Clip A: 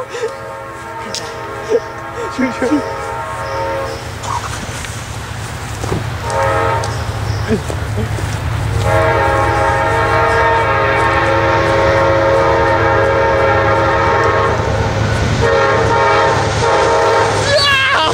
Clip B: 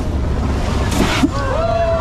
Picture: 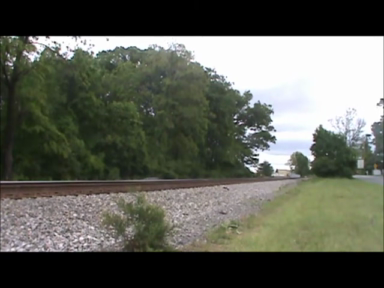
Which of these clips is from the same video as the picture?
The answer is A